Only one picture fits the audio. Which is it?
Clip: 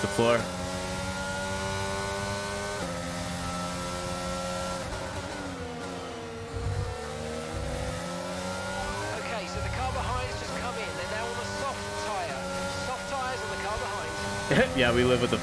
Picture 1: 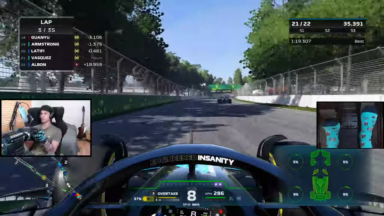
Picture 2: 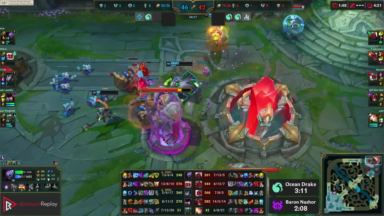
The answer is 1